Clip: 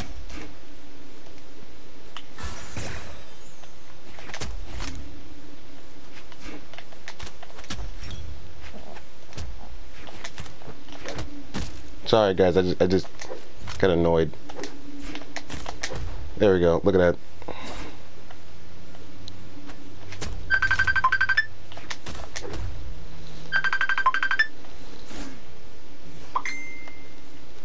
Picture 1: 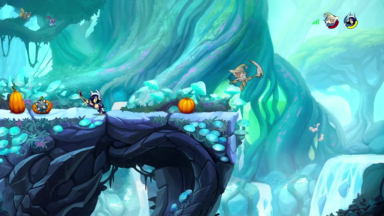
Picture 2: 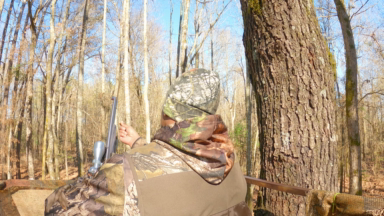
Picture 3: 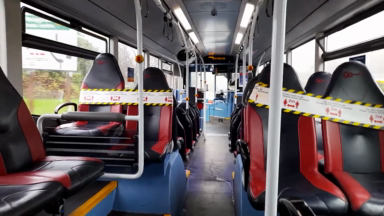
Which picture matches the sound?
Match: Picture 1